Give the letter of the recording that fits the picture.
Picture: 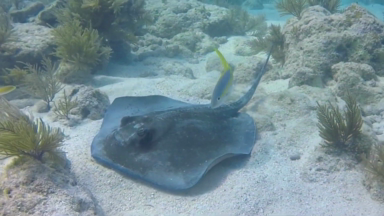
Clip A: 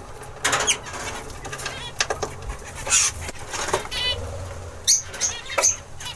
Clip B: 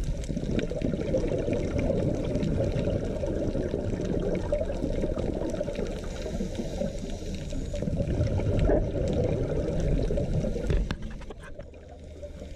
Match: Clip B